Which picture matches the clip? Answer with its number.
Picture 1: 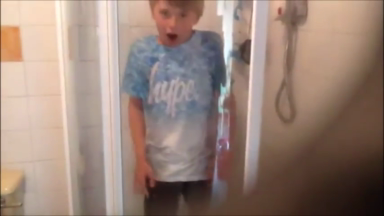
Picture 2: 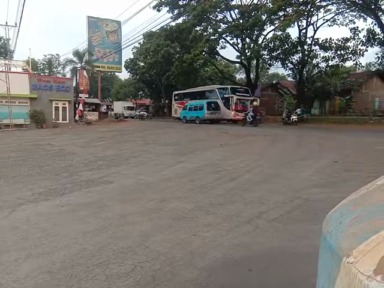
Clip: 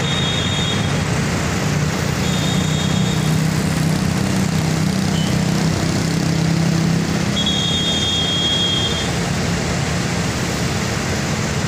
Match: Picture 2